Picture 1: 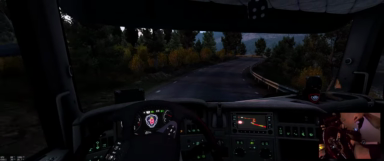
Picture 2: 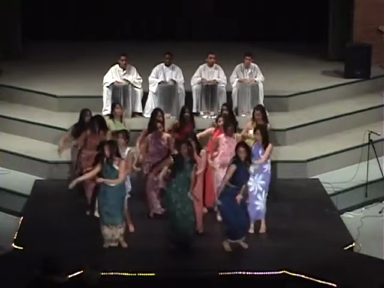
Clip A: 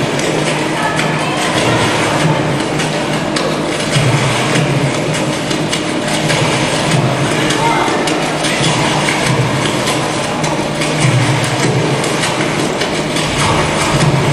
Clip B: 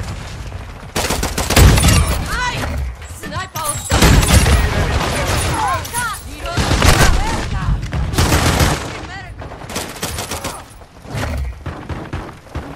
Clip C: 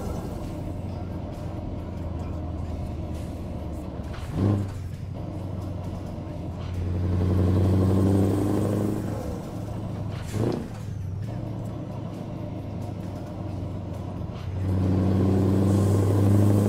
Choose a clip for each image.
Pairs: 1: C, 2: A